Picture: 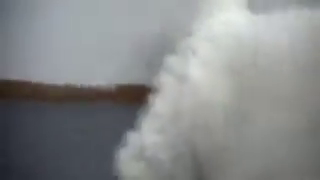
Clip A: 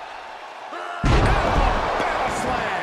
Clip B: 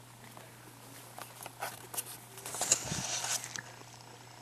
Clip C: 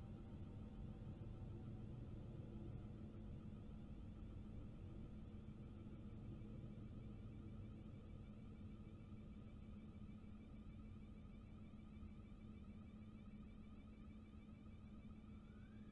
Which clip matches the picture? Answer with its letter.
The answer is B